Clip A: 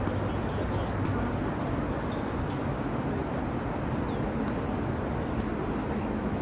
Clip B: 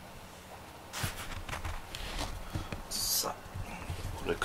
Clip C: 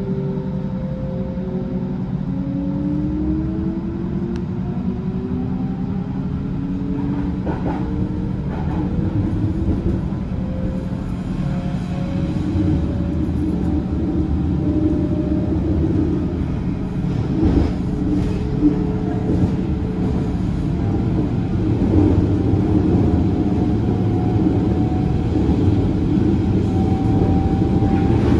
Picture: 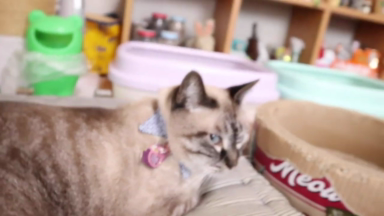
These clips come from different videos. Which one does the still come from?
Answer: B